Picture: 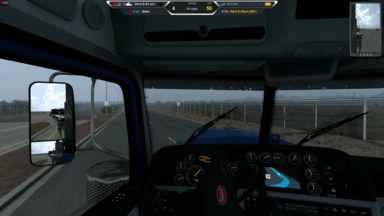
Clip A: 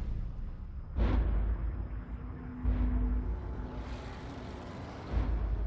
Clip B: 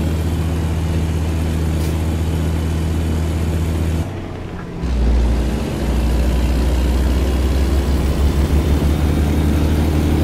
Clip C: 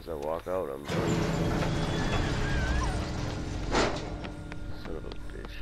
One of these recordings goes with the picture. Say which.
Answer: B